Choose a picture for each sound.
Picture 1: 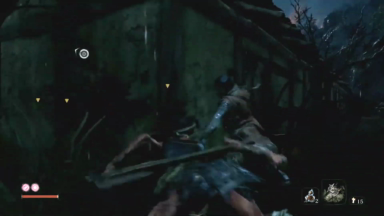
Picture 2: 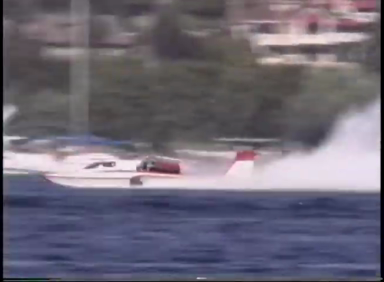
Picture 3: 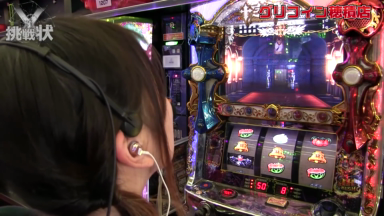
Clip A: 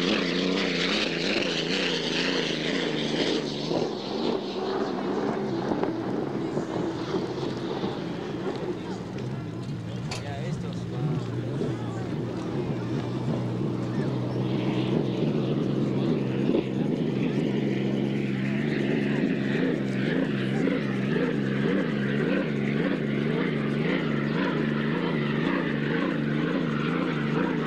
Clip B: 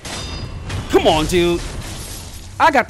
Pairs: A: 2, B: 1